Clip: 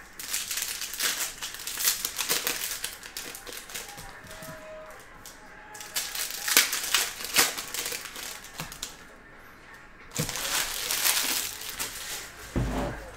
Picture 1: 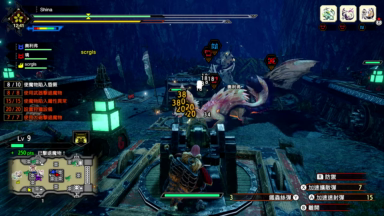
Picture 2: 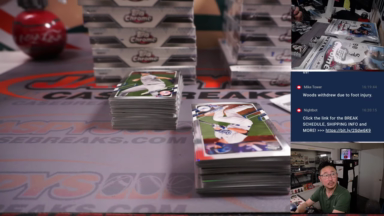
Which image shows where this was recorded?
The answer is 2